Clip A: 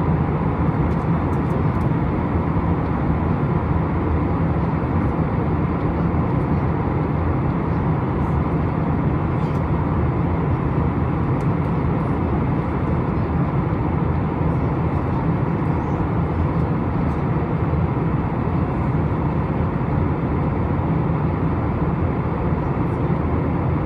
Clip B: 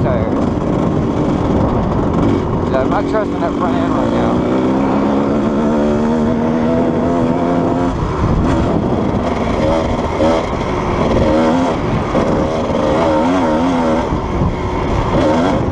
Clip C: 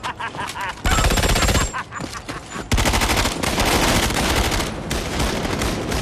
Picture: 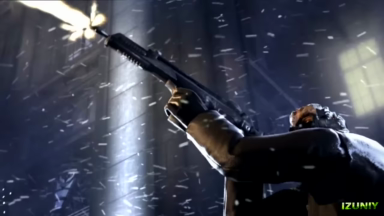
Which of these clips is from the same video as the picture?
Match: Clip C